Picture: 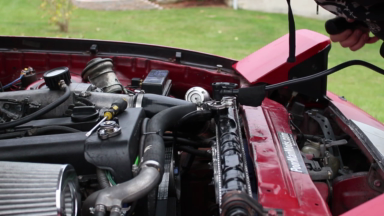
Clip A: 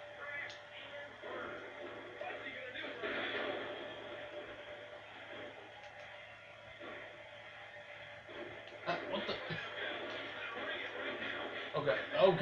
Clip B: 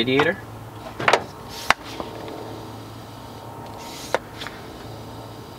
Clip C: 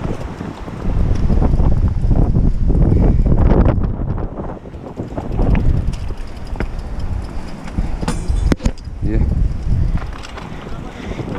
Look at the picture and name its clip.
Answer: B